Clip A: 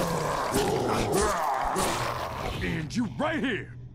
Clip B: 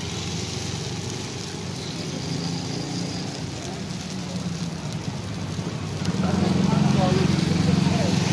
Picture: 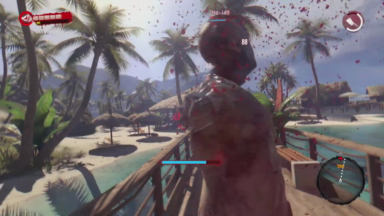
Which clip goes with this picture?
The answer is A